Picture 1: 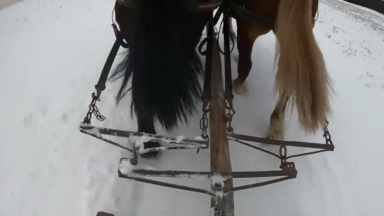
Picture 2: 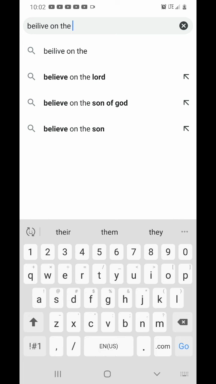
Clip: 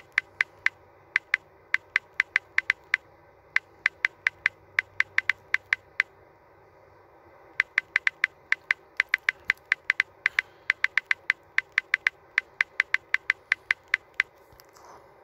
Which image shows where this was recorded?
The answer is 2